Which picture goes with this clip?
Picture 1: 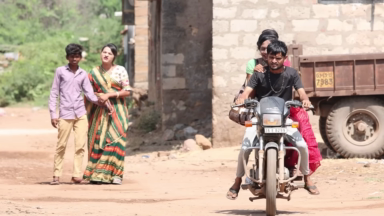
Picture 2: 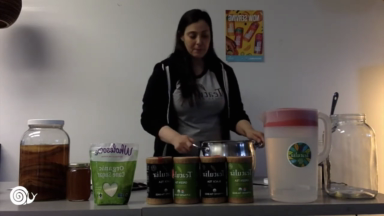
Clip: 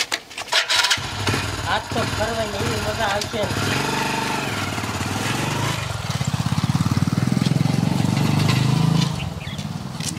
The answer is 1